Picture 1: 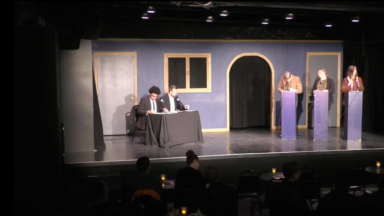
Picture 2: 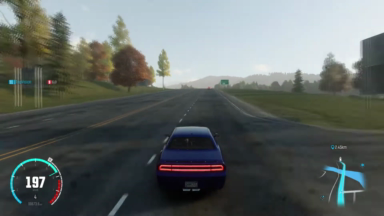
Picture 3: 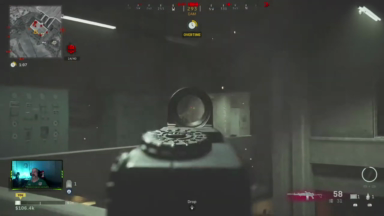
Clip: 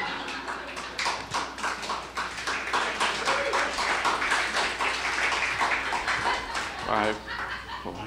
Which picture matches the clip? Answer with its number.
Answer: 1